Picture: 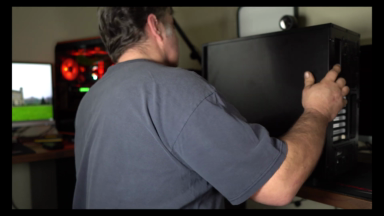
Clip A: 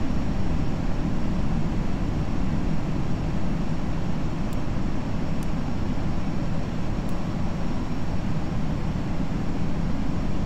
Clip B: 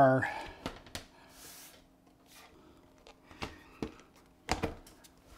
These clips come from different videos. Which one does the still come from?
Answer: B